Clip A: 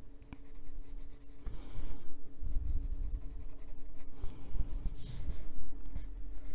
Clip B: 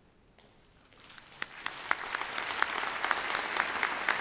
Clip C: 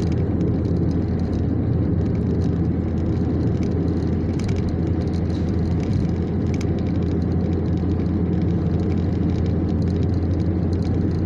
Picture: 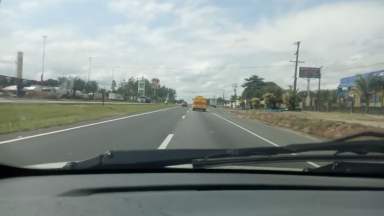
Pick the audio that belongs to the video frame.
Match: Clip C